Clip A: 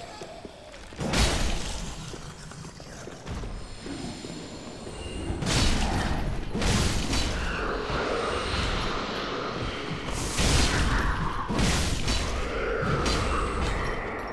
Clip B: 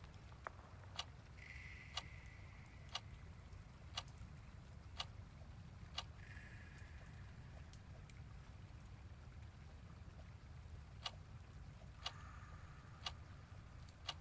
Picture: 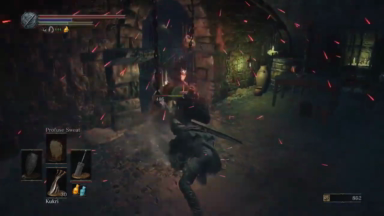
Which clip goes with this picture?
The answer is A